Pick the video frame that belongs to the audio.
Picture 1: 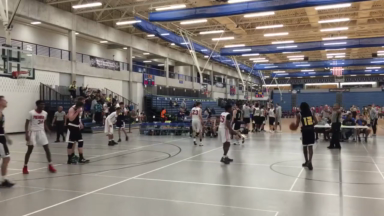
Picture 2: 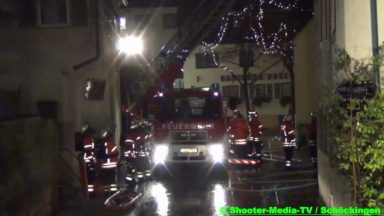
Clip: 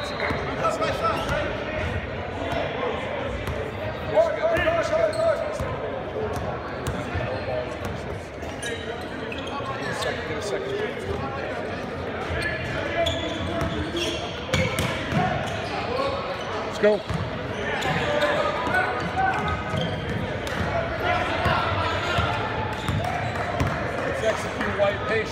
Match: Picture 1